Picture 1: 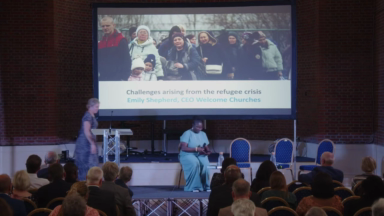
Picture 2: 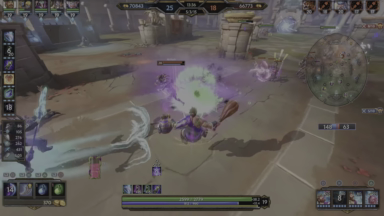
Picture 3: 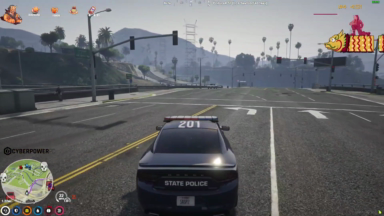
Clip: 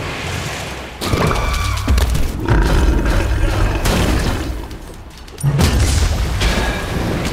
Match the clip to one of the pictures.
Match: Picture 2